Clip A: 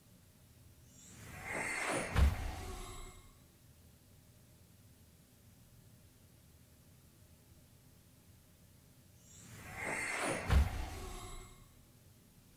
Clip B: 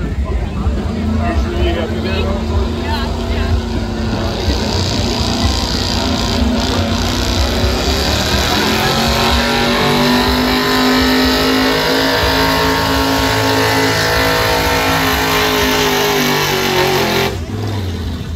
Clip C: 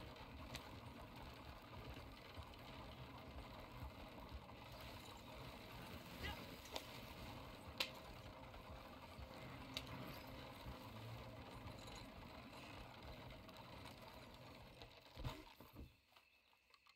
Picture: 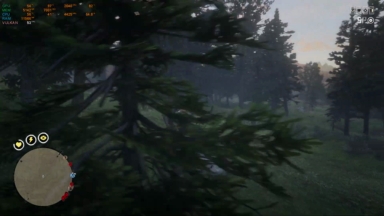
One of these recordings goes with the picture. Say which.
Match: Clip C